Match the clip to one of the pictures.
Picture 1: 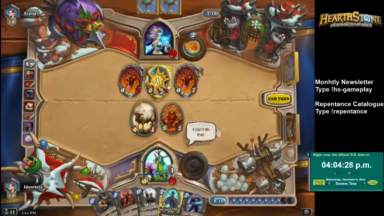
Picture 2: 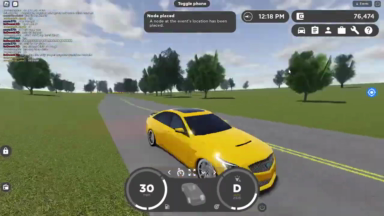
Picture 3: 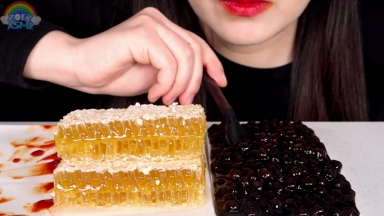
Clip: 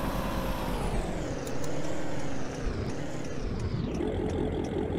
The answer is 2